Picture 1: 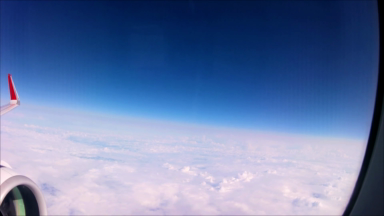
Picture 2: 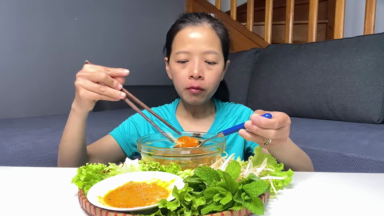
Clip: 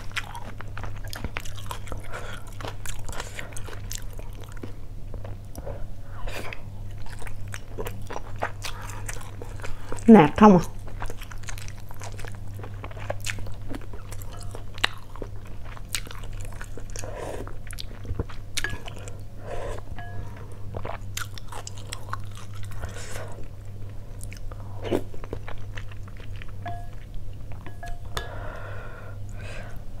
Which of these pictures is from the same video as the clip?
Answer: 2